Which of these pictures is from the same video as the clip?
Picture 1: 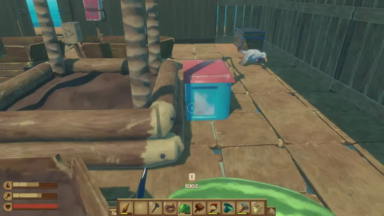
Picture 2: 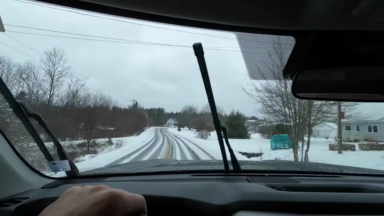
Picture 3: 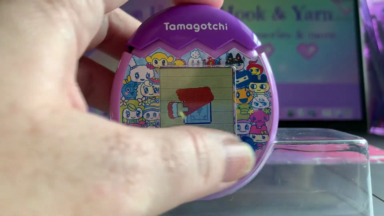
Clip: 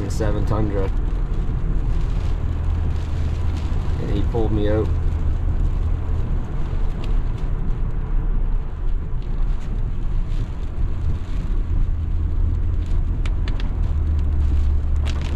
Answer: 2